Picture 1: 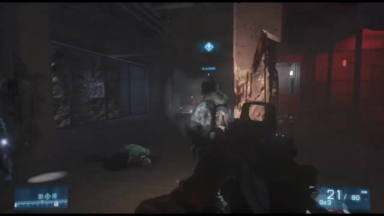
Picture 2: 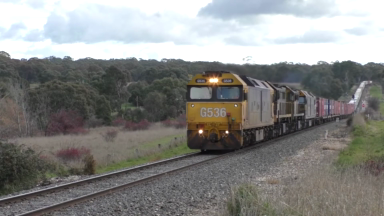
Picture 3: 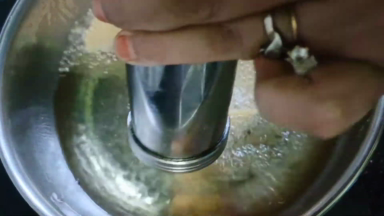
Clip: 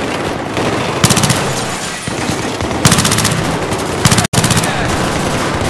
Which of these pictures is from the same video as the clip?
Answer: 1